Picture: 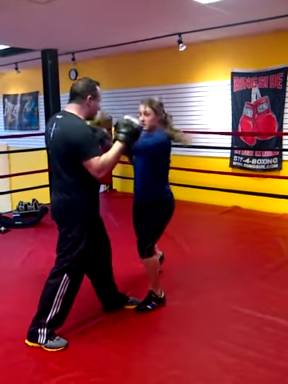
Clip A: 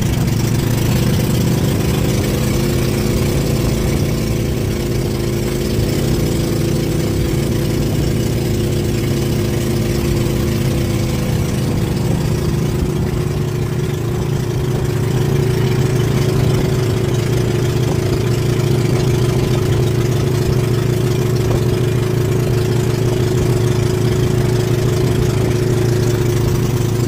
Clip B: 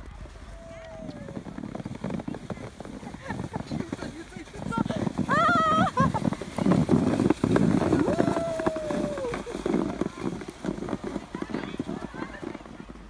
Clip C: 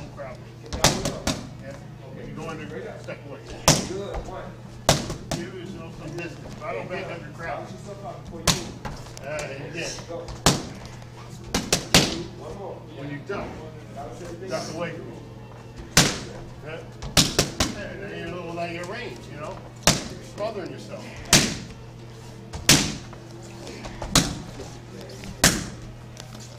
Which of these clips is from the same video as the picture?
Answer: C